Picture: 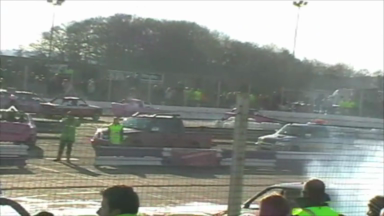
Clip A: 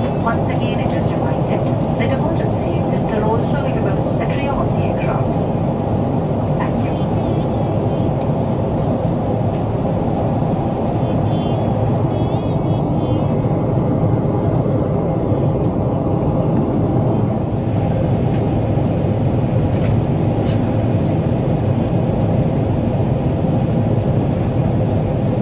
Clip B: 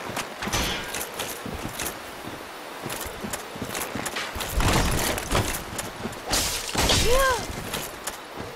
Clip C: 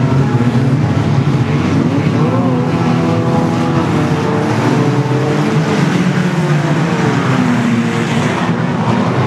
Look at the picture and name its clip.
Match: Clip C